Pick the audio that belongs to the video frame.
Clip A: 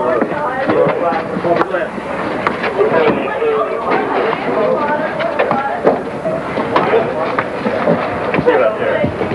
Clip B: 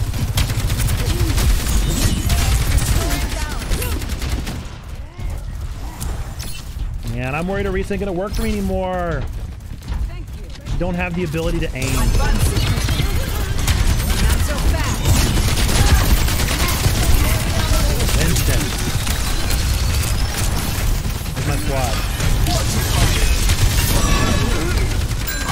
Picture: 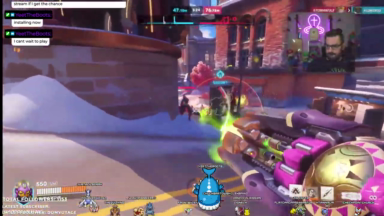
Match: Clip B